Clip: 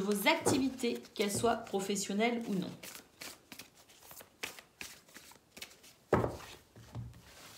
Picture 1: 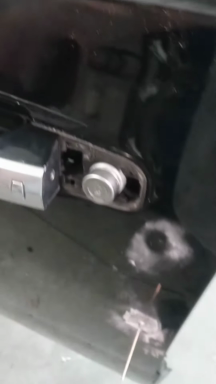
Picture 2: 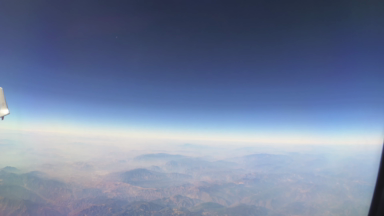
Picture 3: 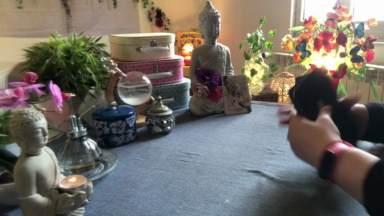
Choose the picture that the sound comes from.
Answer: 3